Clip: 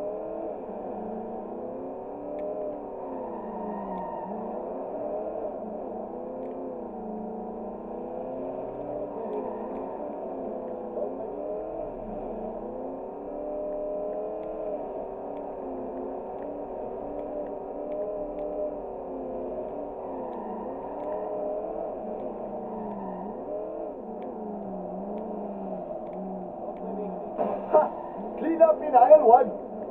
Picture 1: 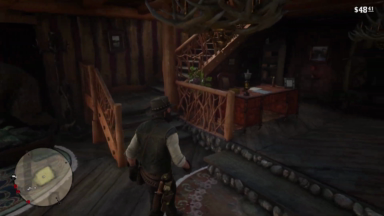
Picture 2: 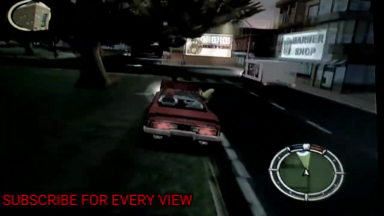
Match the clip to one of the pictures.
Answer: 2